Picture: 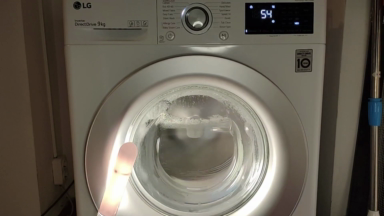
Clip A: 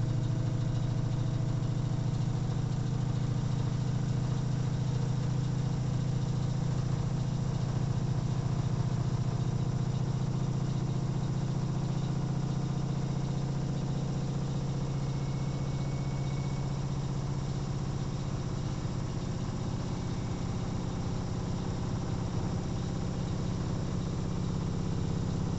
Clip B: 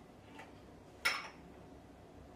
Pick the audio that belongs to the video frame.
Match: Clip A